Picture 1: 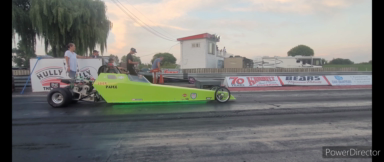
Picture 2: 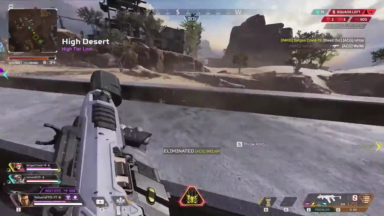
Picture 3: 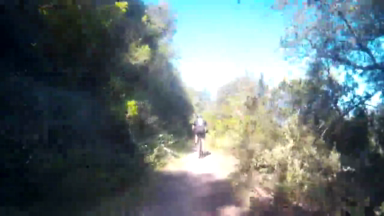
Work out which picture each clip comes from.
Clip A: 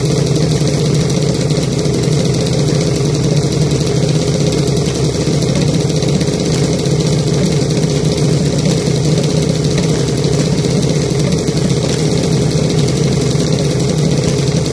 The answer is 1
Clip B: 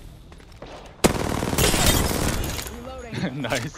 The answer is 2